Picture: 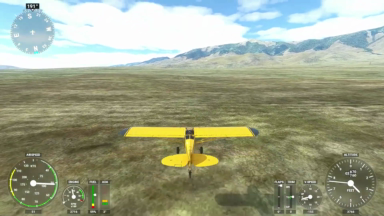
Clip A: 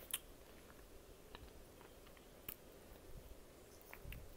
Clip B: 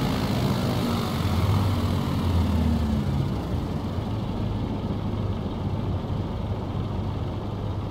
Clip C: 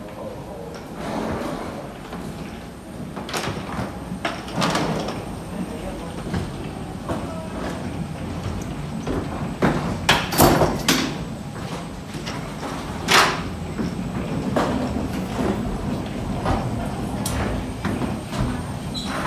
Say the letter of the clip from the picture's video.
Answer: B